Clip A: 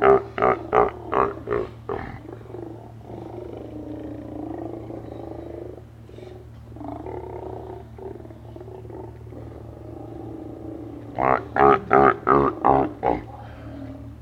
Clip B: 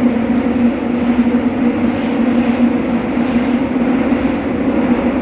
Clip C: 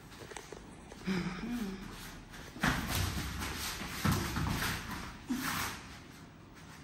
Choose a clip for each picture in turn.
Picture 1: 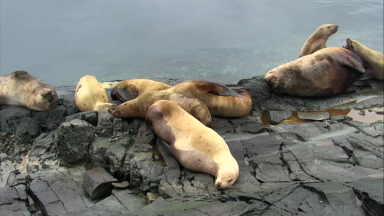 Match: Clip A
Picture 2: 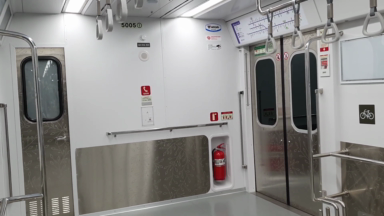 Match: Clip B